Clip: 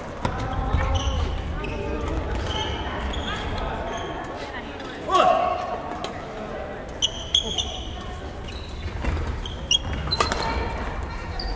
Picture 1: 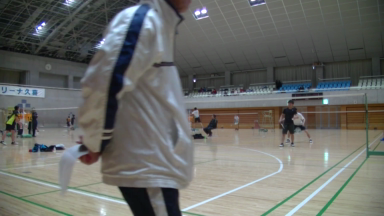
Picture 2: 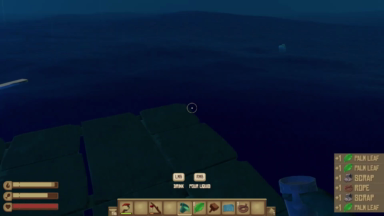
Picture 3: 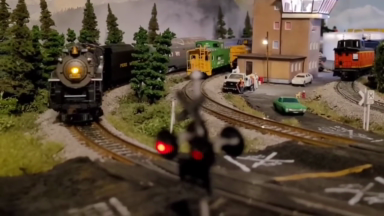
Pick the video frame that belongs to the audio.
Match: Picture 1